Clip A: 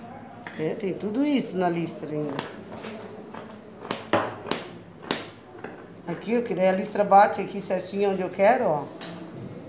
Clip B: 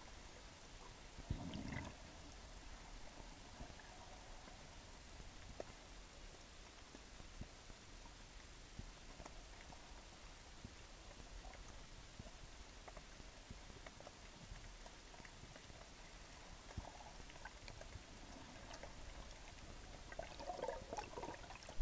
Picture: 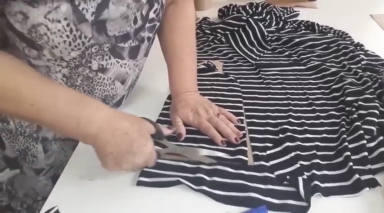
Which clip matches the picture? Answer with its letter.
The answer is A